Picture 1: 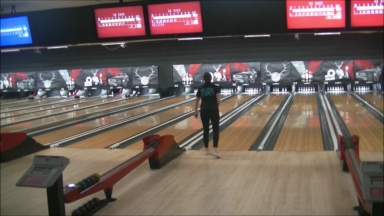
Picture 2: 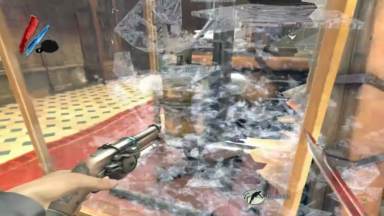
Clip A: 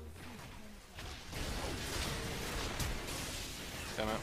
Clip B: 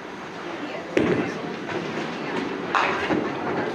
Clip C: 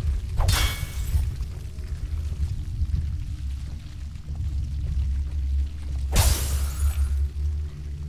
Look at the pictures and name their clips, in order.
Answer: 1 B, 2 C